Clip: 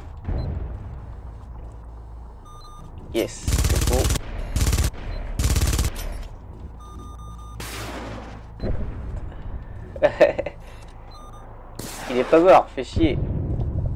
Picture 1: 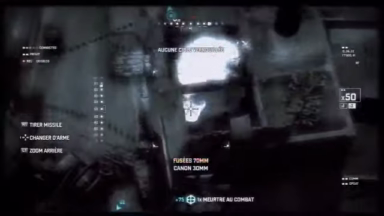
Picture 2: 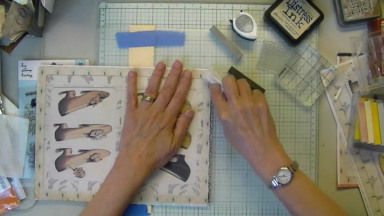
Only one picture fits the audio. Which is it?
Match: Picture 1